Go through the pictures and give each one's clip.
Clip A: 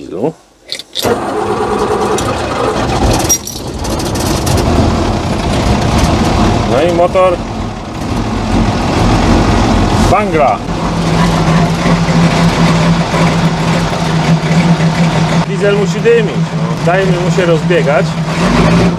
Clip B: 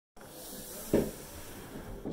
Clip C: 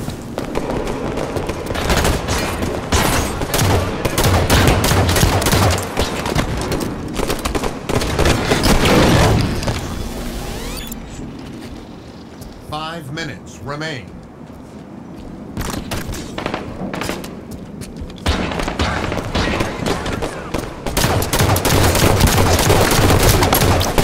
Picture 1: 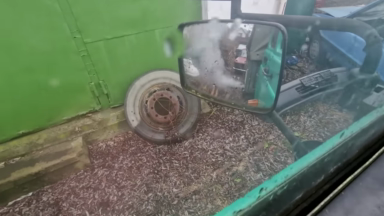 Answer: A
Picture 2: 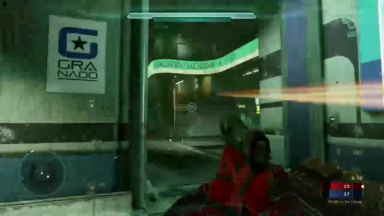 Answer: C